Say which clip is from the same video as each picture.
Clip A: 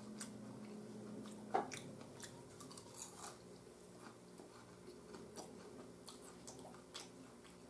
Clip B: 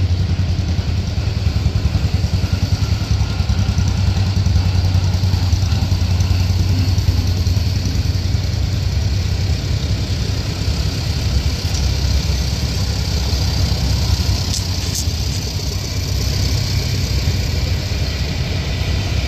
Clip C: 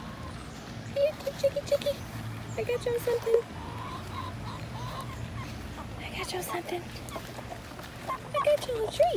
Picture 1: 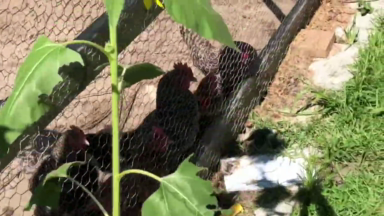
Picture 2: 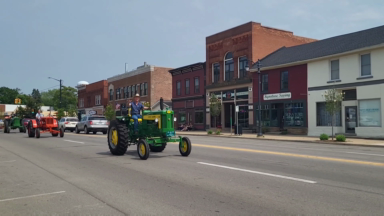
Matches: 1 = C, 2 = B